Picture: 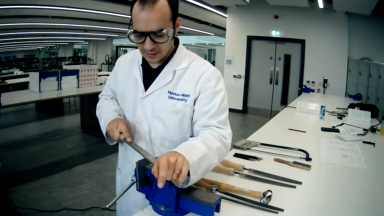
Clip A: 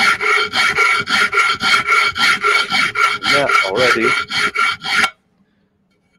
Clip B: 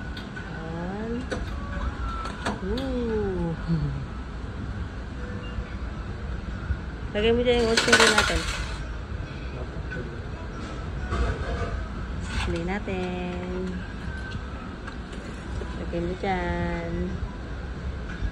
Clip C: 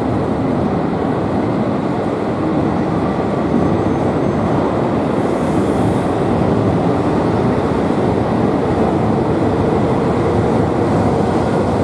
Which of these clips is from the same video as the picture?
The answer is A